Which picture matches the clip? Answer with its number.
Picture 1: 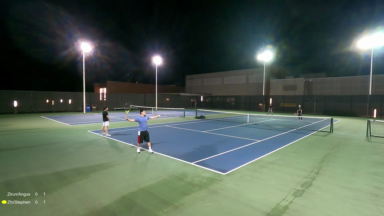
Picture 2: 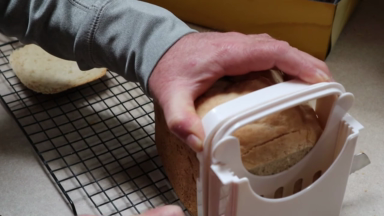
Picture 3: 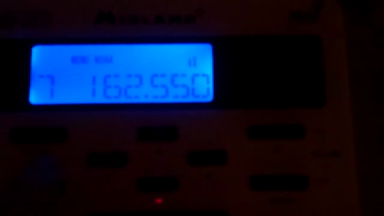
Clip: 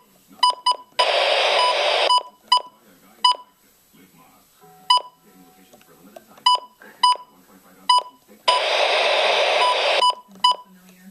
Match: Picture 3